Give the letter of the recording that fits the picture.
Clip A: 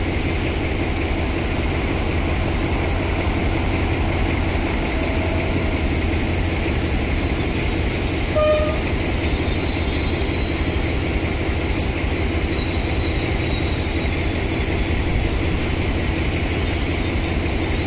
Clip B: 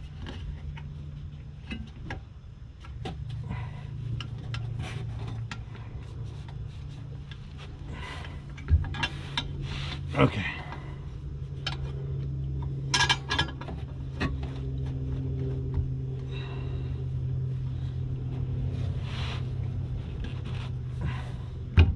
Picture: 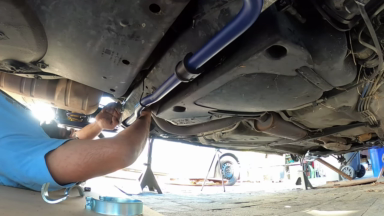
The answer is B